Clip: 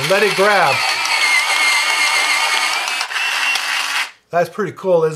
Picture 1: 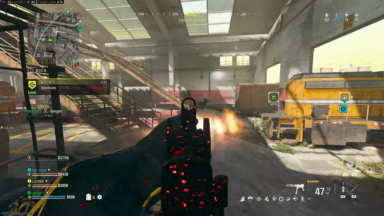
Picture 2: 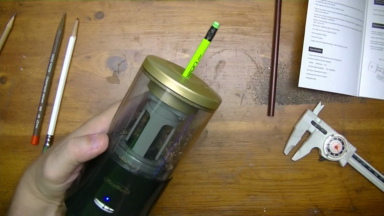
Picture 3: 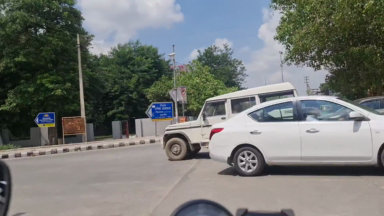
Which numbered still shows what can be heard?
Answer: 2